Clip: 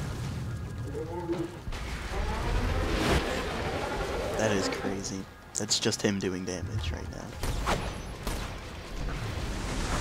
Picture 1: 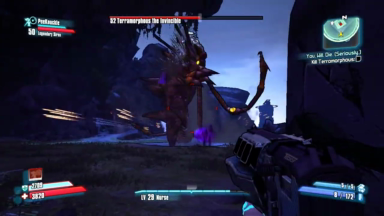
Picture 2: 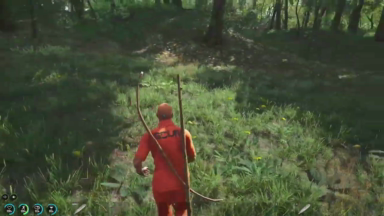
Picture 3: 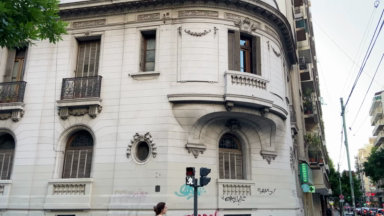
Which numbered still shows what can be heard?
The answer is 1